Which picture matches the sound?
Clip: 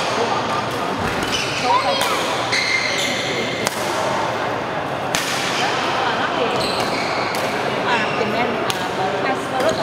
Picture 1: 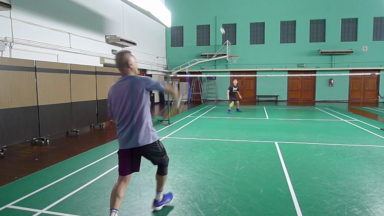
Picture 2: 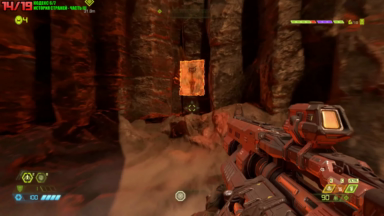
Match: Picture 1